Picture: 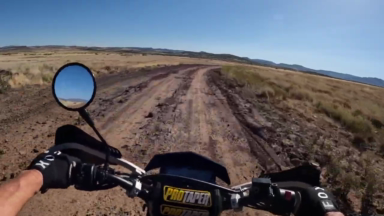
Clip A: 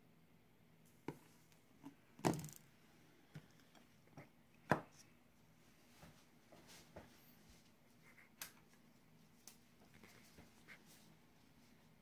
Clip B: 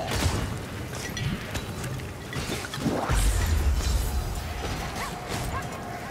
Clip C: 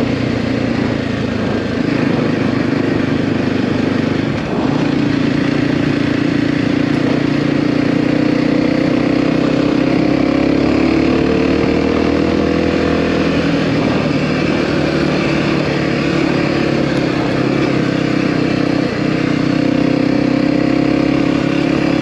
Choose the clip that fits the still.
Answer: C